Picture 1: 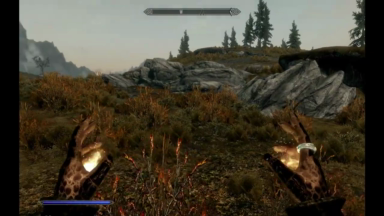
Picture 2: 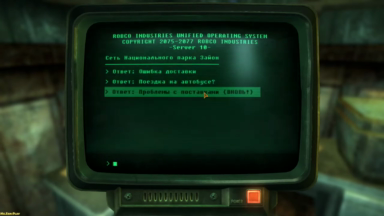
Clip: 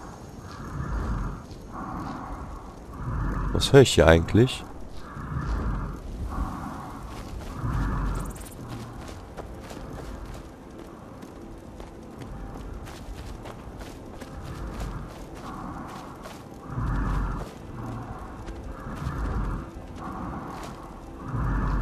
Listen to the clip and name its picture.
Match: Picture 1